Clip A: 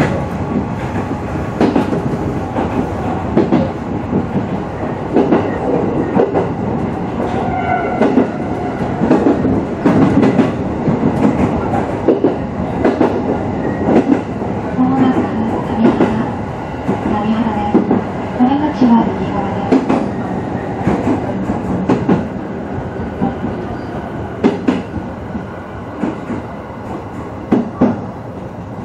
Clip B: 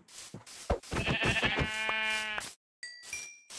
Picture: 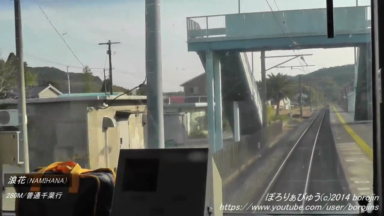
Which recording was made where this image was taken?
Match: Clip A